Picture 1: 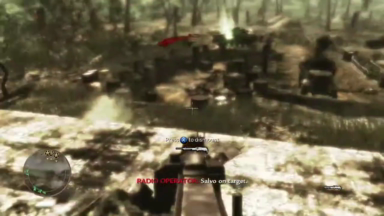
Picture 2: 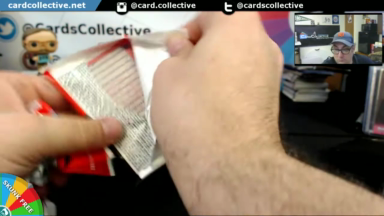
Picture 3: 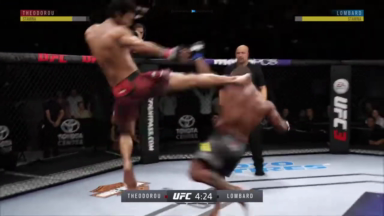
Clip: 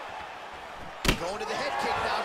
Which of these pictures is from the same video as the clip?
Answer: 3